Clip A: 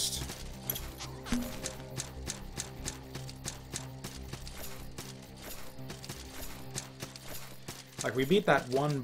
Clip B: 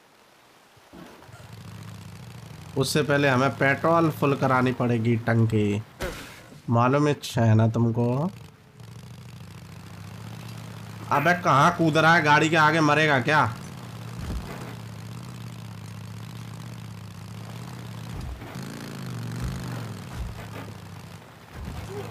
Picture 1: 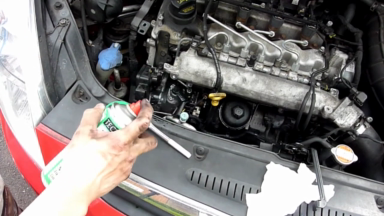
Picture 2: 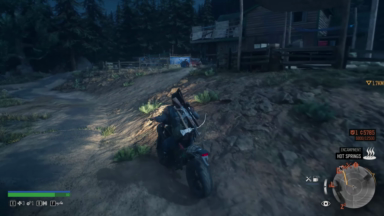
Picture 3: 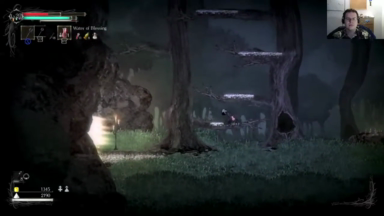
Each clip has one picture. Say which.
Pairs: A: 3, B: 2